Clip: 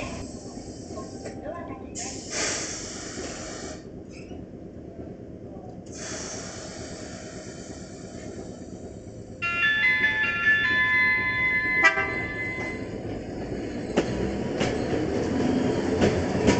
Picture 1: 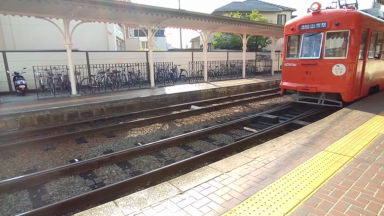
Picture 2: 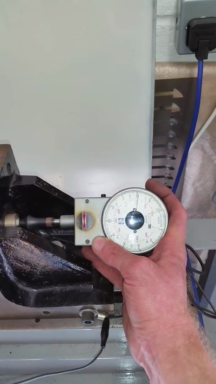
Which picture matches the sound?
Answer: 1